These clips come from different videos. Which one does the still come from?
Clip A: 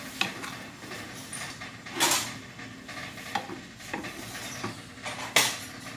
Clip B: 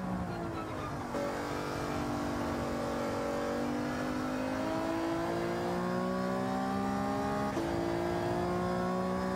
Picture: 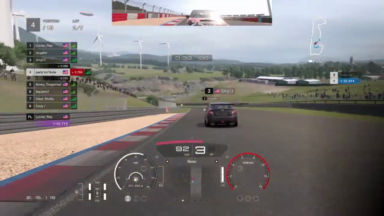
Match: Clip B